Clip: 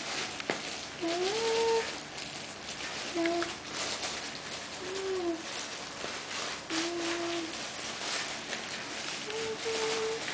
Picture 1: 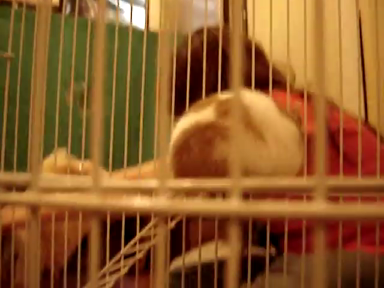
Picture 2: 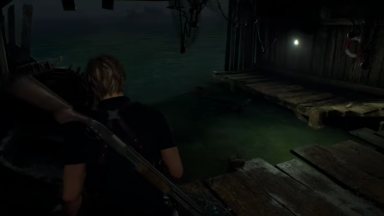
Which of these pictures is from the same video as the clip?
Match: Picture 1